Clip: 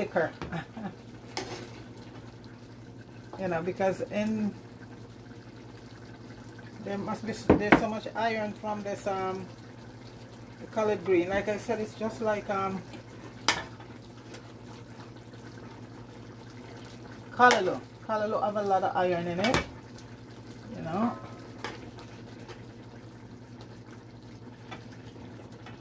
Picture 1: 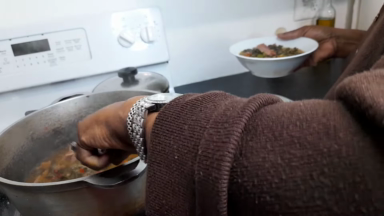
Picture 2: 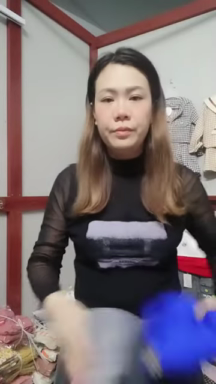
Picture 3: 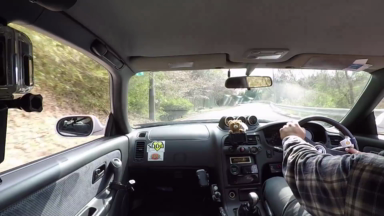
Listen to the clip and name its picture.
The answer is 1